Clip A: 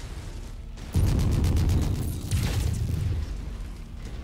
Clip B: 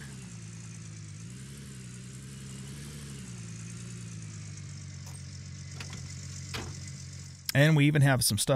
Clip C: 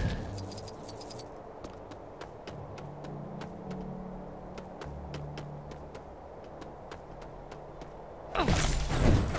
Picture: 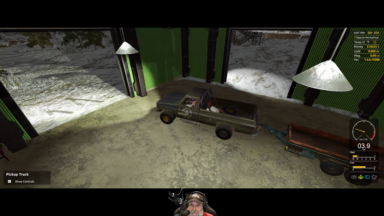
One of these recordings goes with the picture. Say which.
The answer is B